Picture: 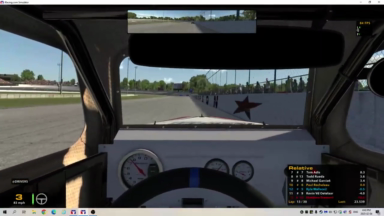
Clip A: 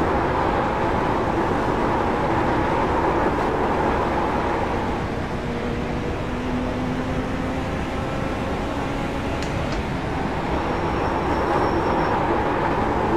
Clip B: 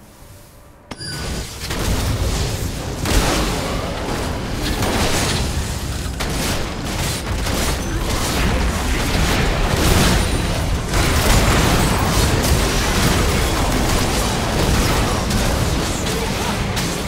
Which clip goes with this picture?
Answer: A